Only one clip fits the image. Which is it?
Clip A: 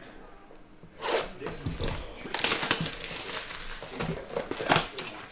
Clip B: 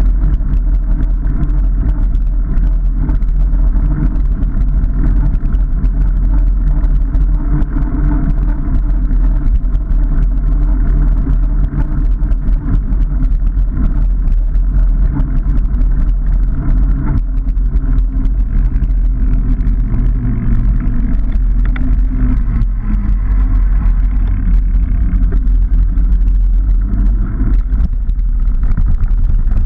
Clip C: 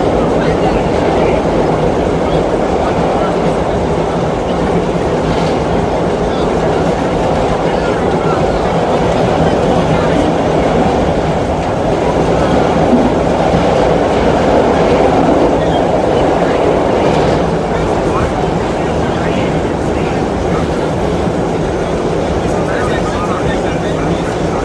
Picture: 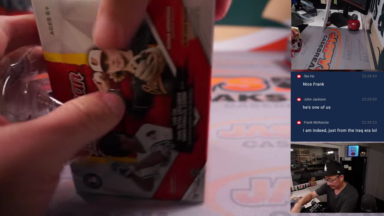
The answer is A